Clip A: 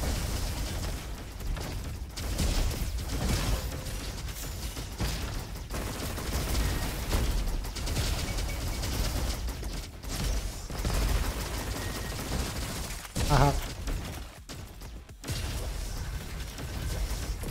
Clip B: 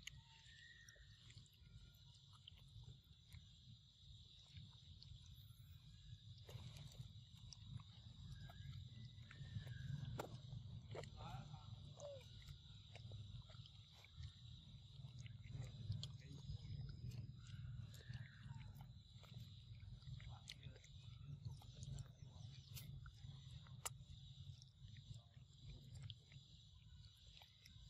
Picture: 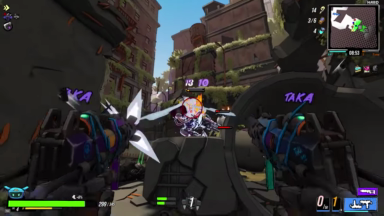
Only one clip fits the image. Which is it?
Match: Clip A